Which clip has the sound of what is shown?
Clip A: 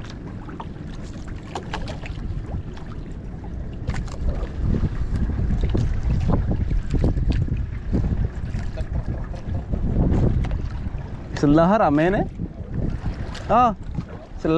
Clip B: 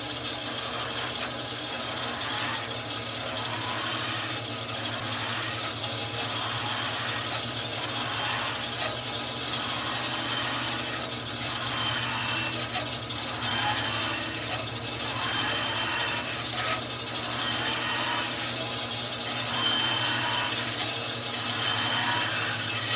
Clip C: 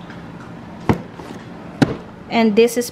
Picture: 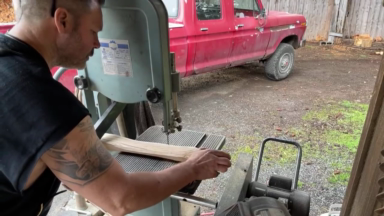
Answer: B